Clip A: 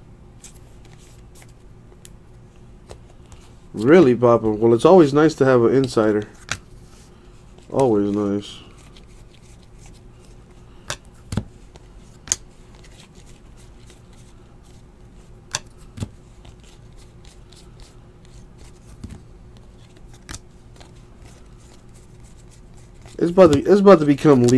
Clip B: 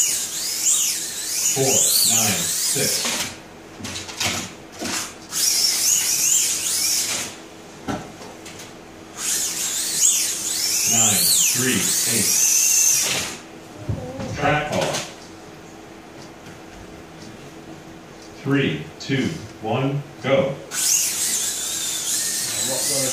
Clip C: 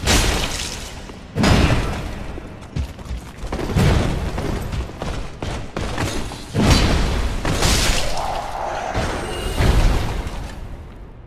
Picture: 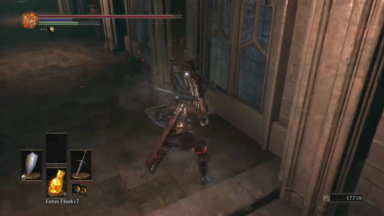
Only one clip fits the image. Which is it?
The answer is C